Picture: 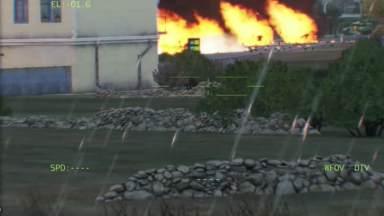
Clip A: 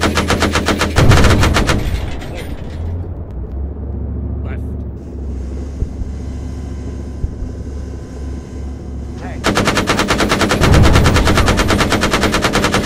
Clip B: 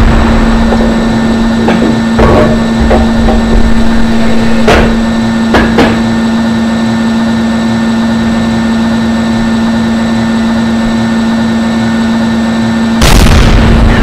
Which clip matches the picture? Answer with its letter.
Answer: A